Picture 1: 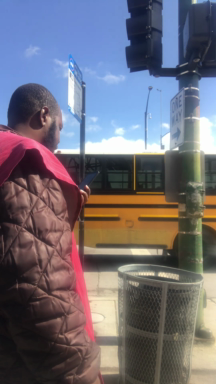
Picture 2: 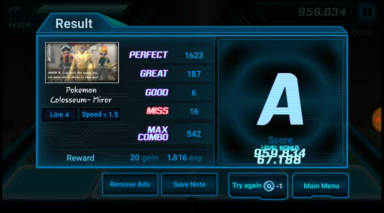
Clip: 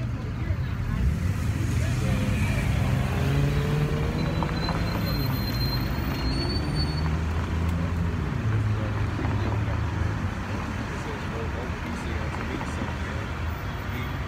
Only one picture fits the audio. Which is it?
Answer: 1